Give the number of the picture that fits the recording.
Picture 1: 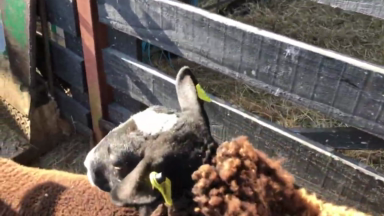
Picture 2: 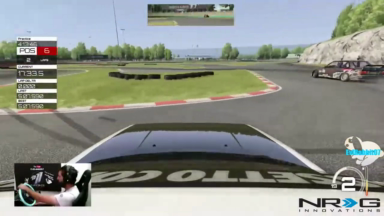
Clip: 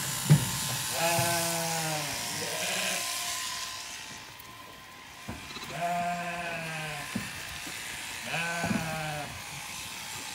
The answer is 1